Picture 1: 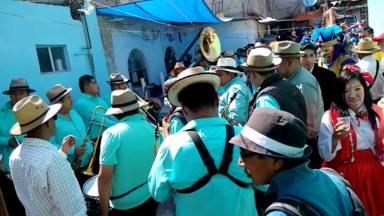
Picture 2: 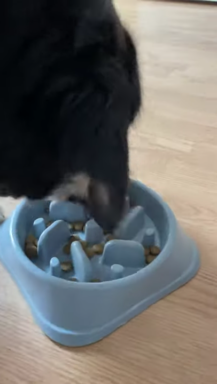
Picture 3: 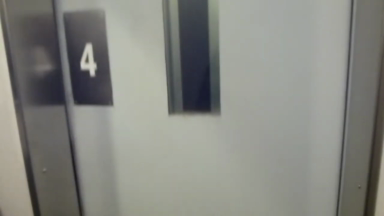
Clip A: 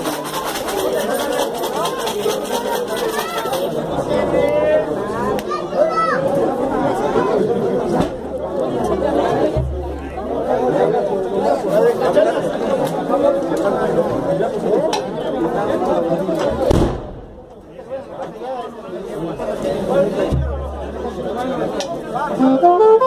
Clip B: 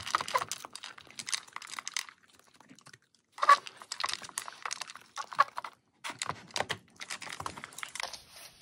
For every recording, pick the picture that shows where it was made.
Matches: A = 1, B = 2